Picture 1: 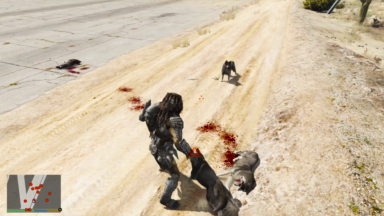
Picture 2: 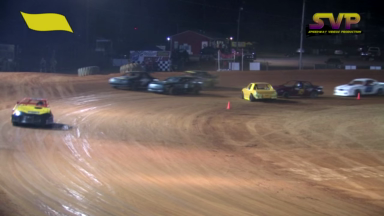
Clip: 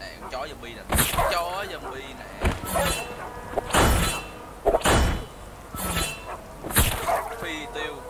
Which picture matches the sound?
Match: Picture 1